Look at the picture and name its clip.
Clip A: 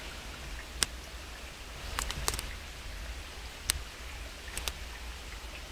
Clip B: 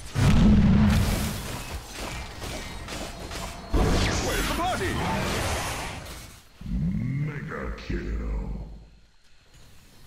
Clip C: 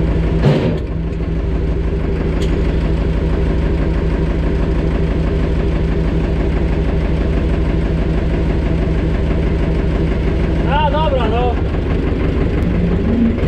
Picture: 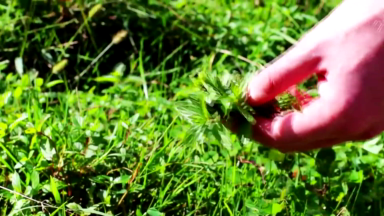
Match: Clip A